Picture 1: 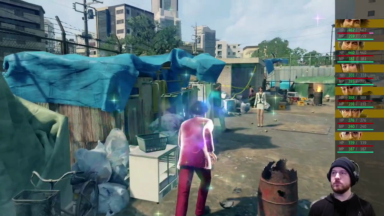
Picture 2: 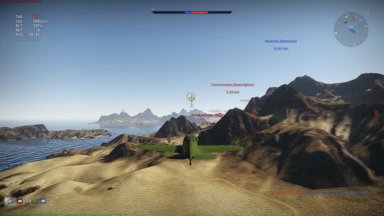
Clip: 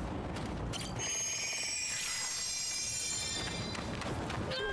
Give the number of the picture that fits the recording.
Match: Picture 1